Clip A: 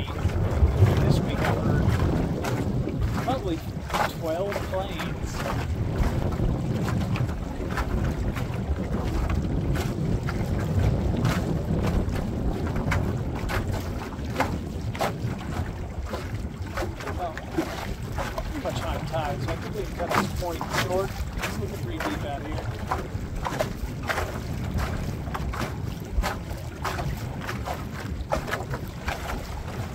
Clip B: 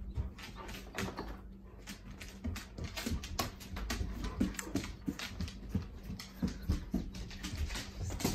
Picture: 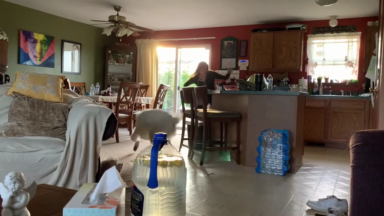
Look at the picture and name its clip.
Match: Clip B